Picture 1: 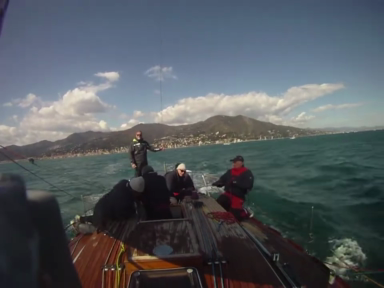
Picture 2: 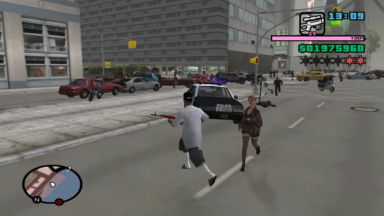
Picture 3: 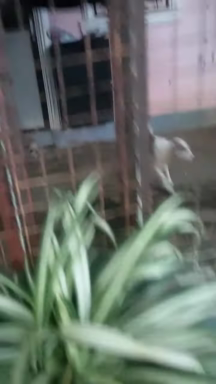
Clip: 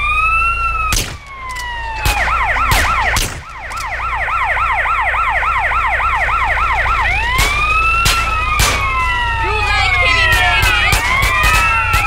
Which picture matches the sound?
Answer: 2